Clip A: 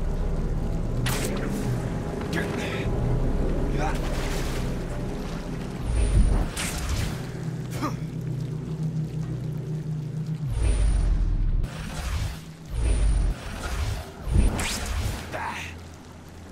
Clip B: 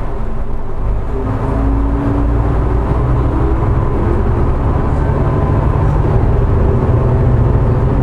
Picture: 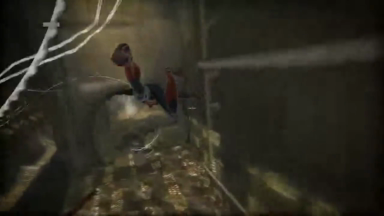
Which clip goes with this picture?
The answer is A